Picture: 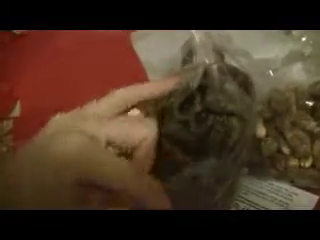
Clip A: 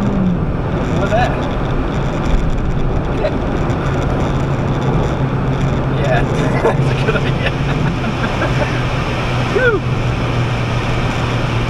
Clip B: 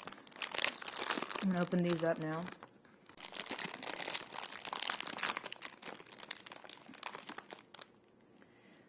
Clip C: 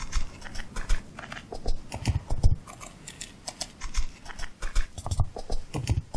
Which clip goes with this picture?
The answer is B